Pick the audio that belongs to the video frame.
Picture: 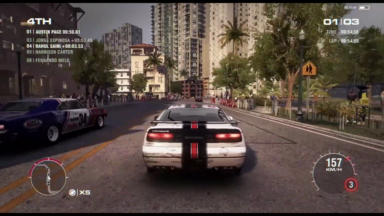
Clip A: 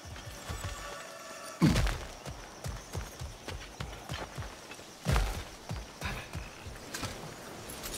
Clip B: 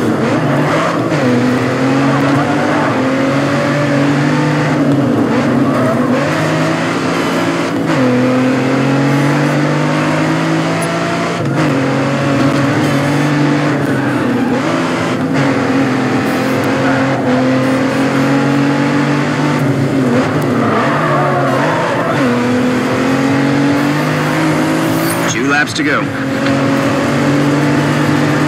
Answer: B